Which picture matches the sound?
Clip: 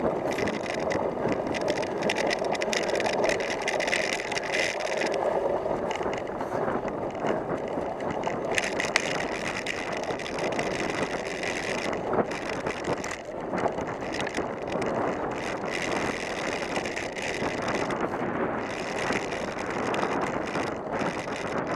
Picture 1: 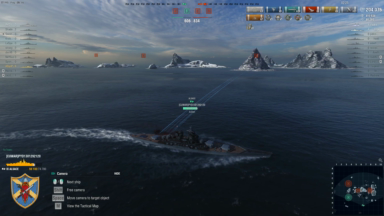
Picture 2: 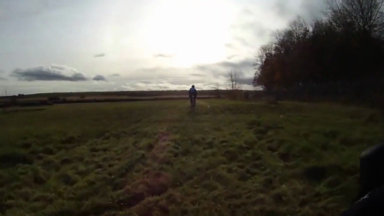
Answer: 2